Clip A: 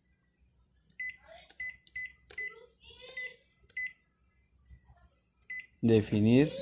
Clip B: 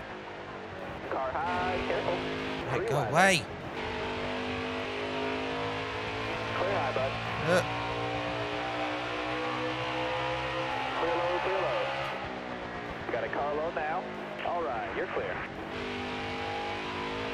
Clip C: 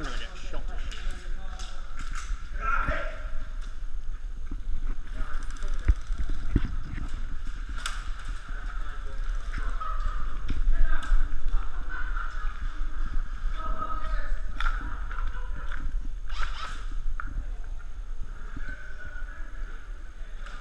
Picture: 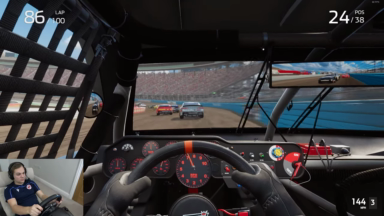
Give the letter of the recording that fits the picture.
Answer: B